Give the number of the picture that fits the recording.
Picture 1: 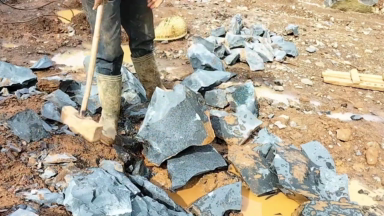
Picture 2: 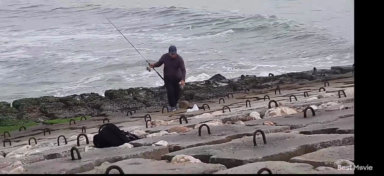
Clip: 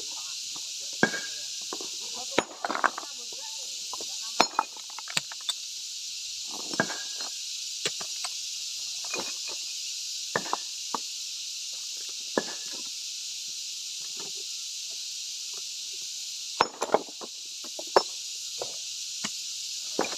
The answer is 1